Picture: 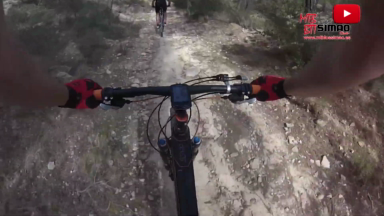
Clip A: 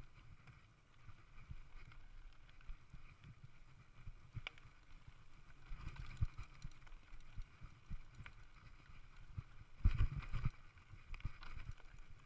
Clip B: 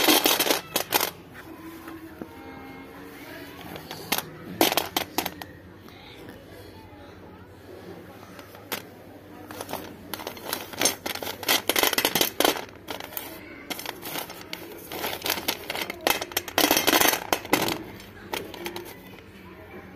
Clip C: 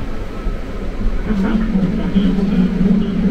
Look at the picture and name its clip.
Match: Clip A